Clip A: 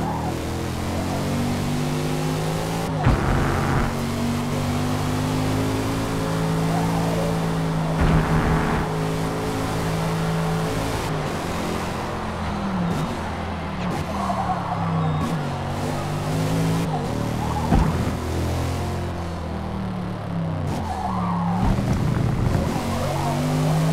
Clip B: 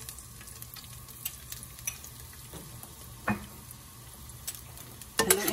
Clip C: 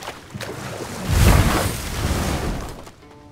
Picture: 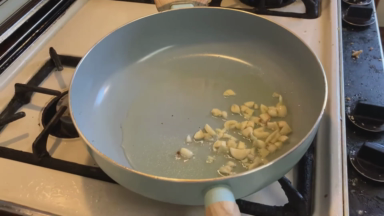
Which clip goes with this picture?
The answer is B